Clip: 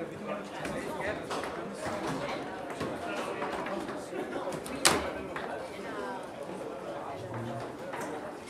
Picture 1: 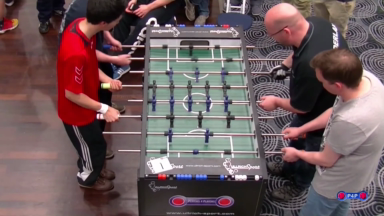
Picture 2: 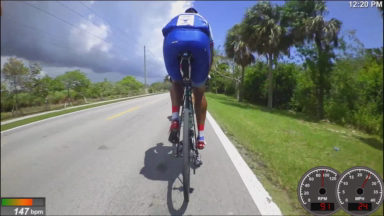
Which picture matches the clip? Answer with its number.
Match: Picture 1